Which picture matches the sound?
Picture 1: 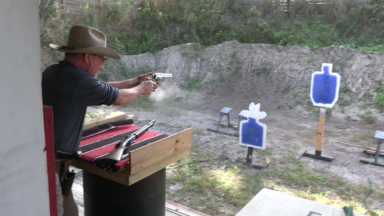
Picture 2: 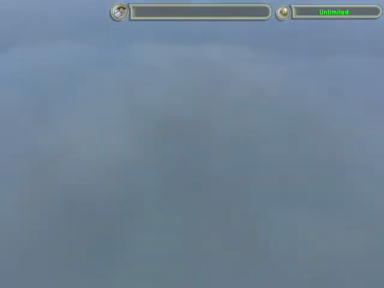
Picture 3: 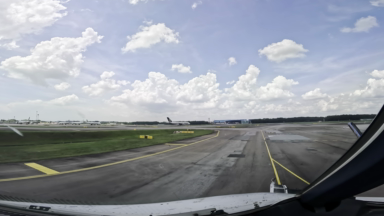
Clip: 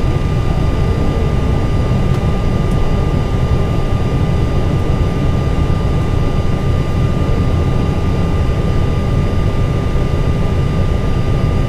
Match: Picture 3